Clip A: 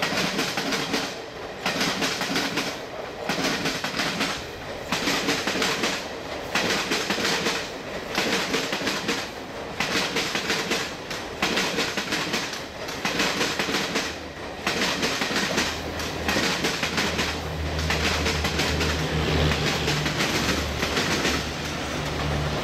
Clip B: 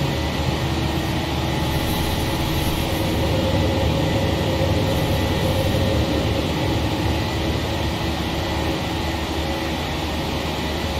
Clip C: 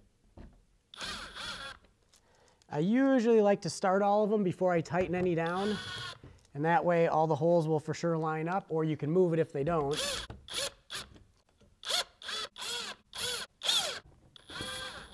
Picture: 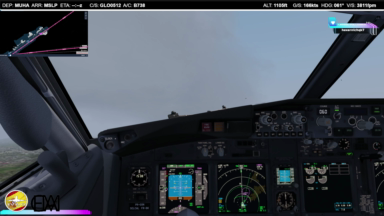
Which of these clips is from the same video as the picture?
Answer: B